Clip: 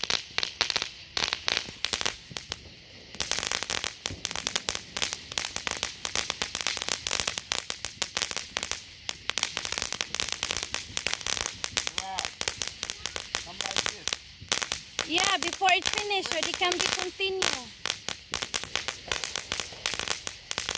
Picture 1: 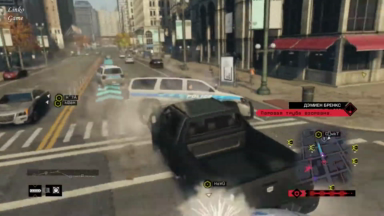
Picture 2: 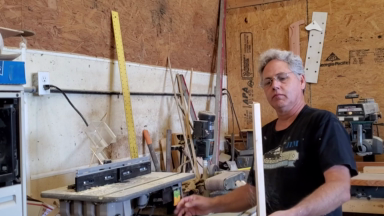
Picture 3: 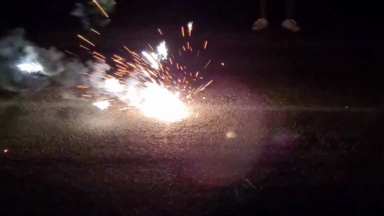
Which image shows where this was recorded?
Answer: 3